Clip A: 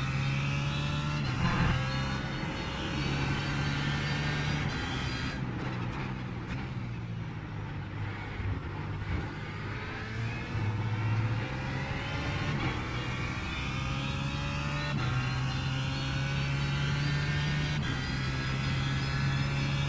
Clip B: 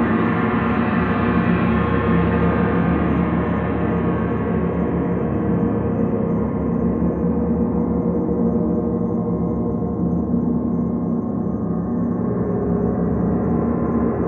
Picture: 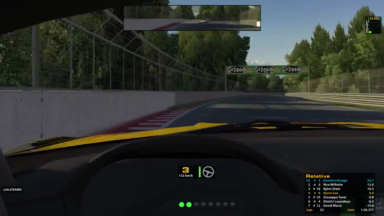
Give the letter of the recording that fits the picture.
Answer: A